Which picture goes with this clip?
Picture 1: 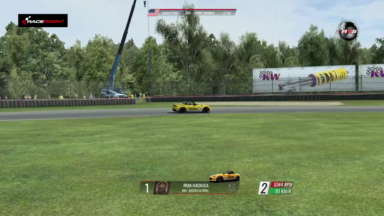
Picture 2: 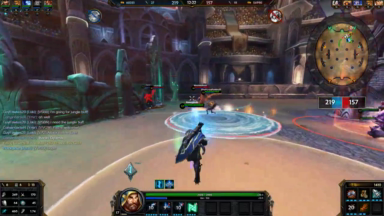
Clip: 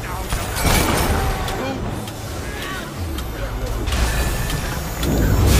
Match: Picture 2